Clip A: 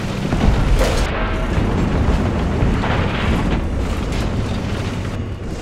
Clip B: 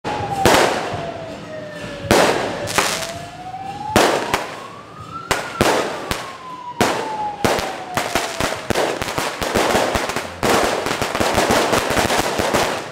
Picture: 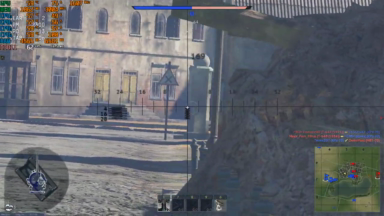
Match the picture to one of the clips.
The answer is A